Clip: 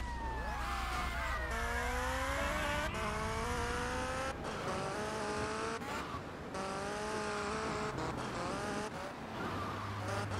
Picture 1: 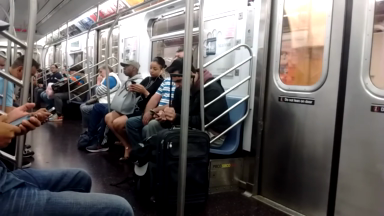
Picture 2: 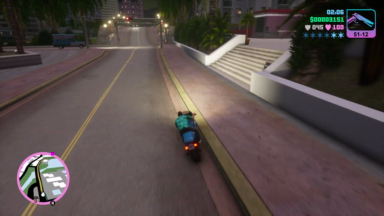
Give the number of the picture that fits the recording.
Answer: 2